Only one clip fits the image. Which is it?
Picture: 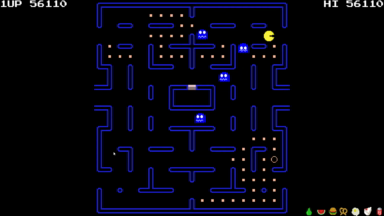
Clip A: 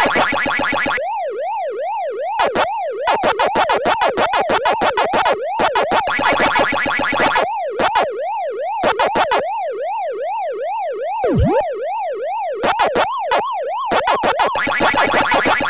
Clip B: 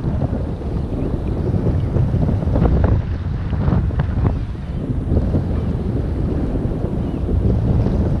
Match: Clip A